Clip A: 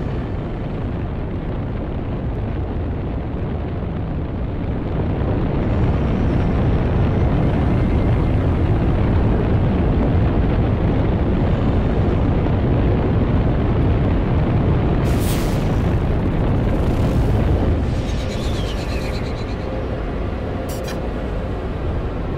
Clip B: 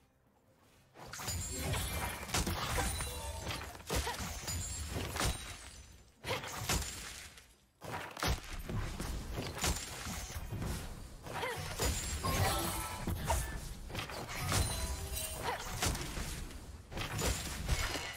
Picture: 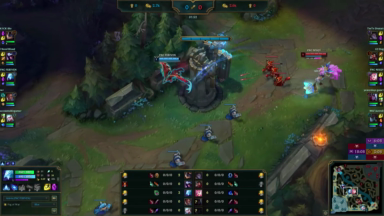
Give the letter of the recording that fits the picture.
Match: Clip B